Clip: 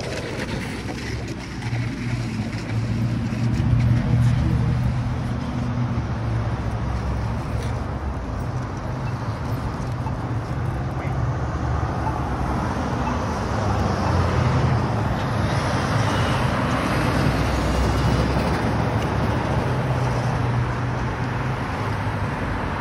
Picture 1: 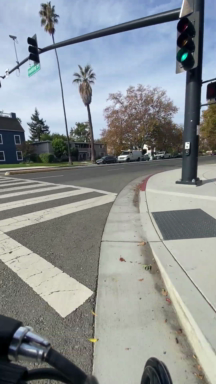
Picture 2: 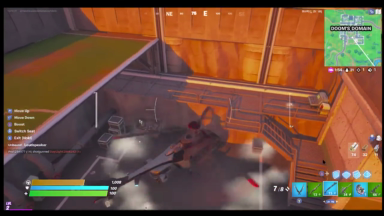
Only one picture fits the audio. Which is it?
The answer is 1